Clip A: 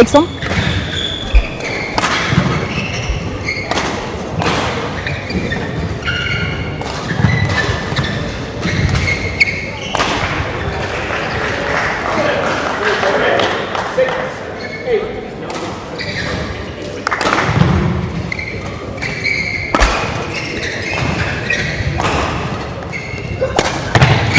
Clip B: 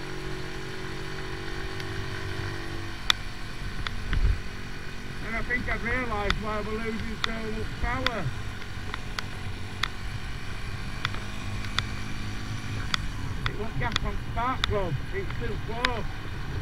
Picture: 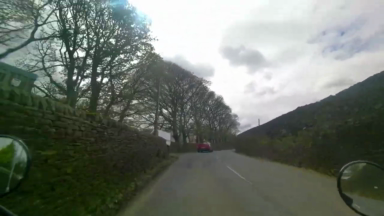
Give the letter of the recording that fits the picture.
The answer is B